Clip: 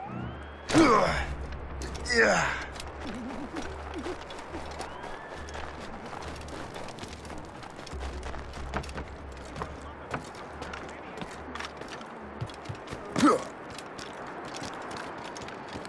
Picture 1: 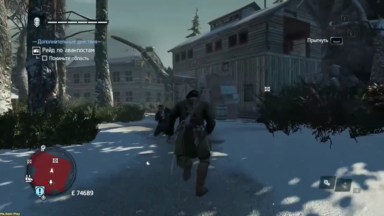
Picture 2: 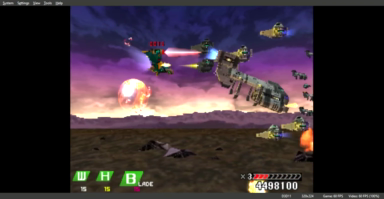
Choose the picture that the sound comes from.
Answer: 1